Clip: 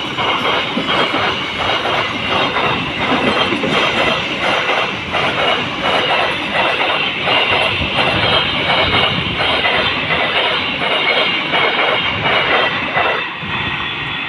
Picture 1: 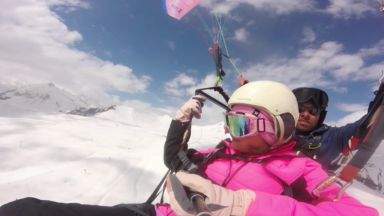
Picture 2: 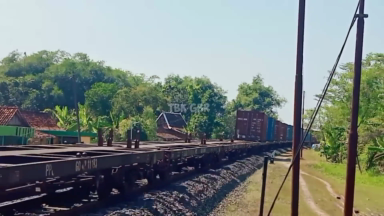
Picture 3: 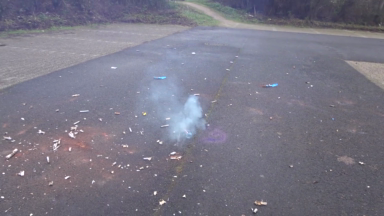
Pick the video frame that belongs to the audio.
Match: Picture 2